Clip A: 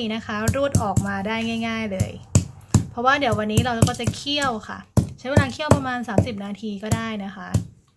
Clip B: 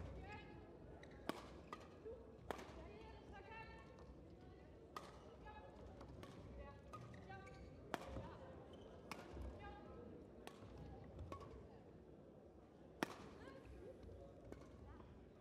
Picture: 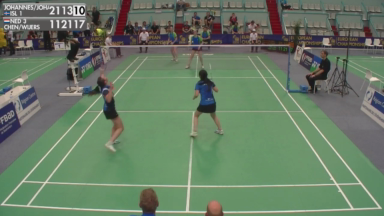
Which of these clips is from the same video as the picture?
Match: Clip B